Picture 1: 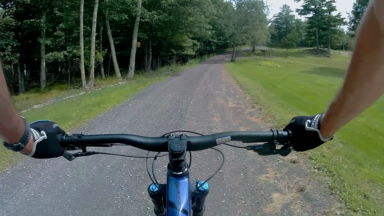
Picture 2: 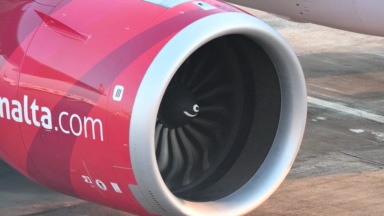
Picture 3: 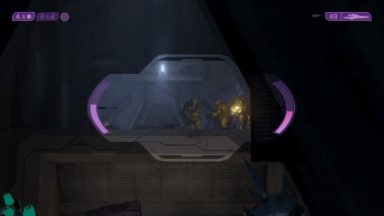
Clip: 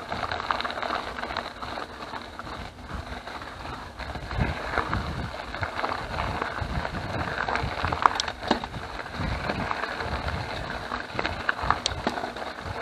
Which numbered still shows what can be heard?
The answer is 1